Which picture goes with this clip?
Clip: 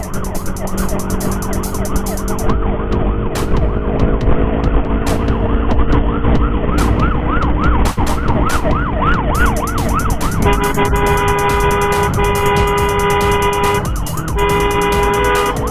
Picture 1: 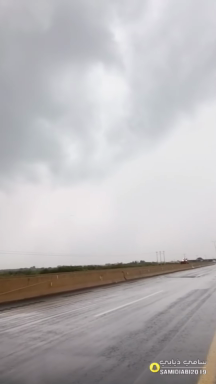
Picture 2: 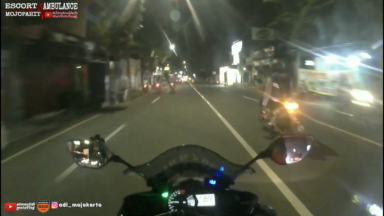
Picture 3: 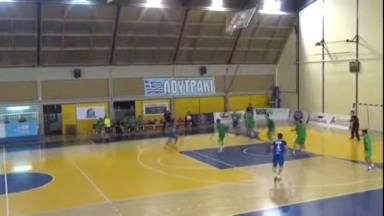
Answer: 2